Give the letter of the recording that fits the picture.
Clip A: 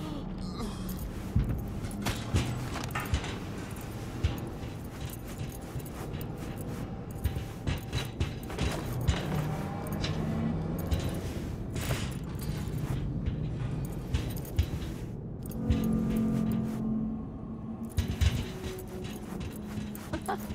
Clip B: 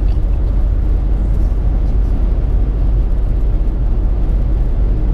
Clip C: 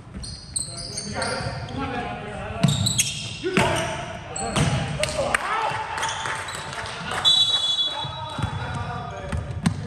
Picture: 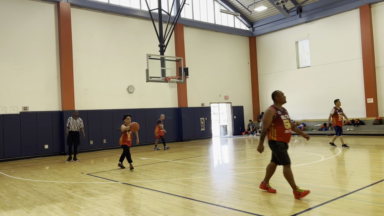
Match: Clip C